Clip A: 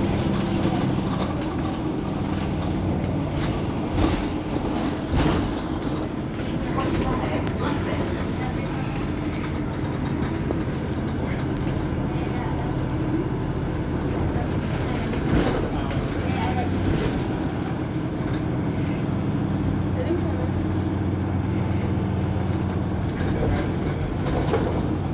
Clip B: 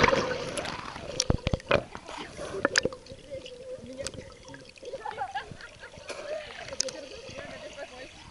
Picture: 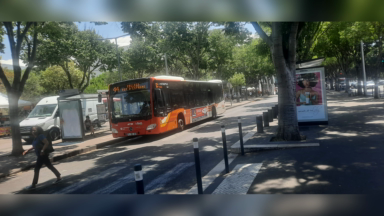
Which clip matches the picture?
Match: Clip A